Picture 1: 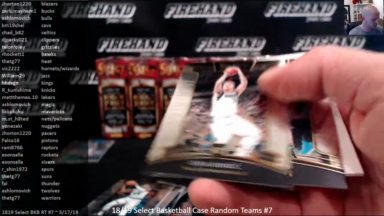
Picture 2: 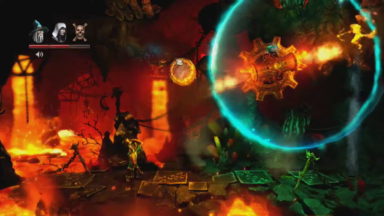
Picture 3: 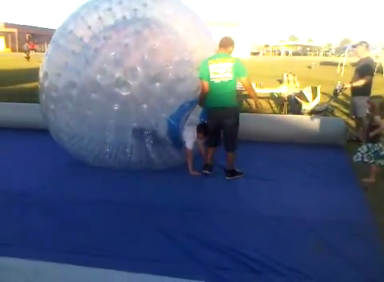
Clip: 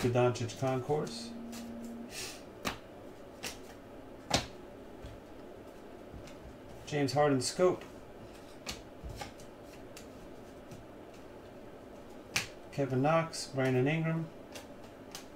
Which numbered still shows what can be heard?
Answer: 1